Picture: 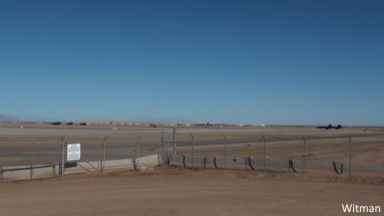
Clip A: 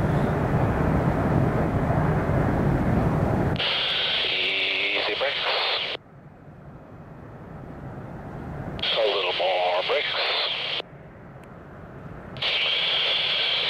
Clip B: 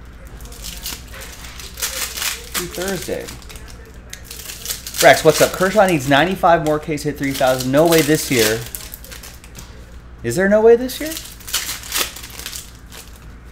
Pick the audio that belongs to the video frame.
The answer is A